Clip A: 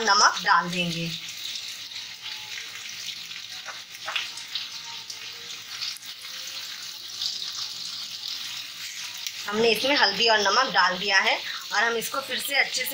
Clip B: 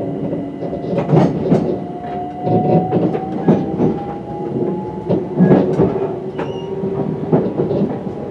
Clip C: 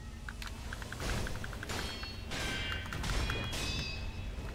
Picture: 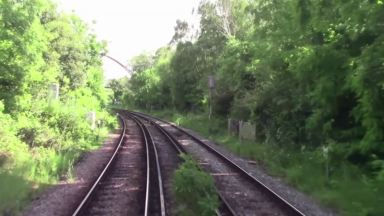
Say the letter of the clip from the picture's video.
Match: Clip B